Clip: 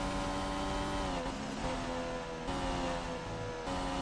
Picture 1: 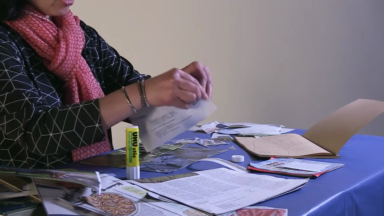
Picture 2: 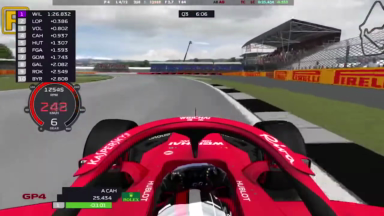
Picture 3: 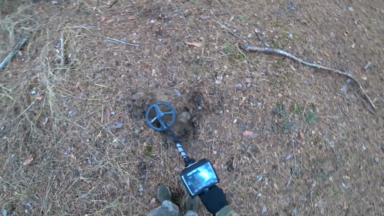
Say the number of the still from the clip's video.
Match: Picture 2